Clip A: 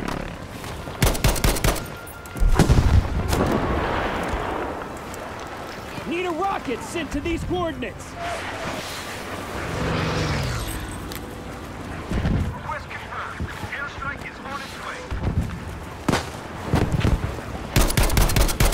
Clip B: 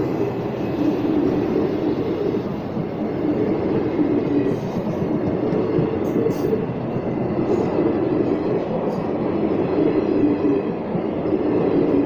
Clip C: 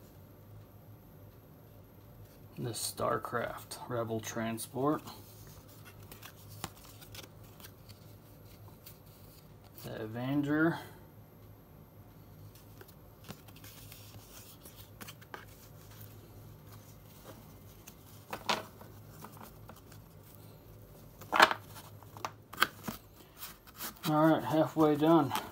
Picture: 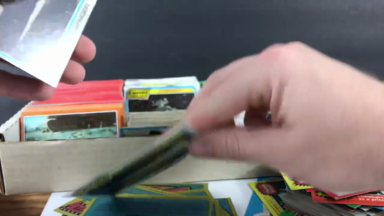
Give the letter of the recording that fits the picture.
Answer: C